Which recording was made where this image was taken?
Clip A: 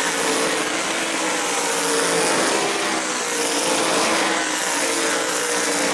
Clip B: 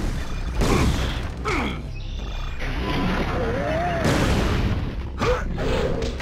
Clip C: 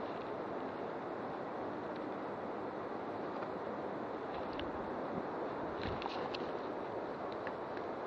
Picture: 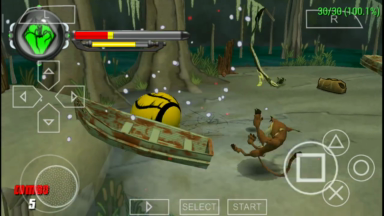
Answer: B